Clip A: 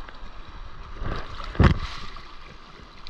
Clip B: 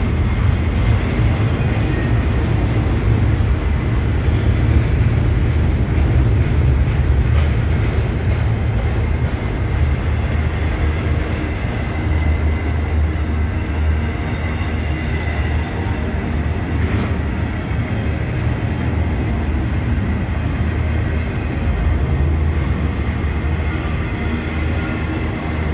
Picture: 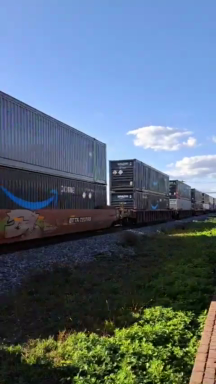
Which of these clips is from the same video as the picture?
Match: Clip B